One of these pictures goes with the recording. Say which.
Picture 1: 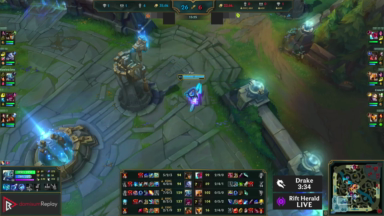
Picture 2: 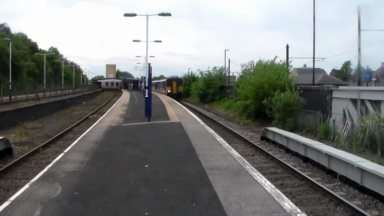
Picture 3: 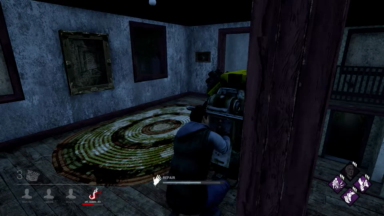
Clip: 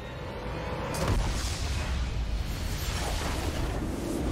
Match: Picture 1